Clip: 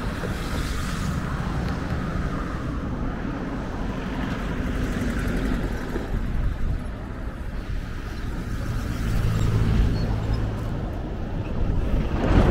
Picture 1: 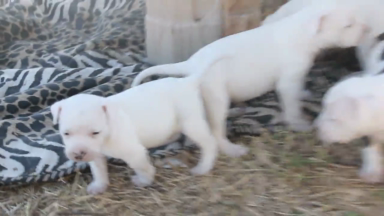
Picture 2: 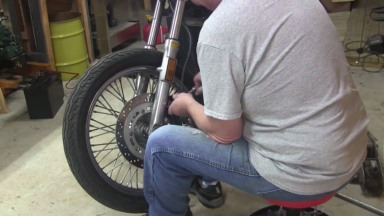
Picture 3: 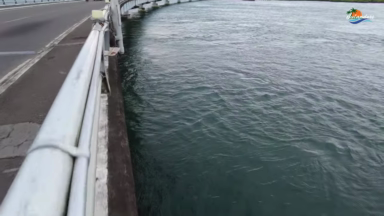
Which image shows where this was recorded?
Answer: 3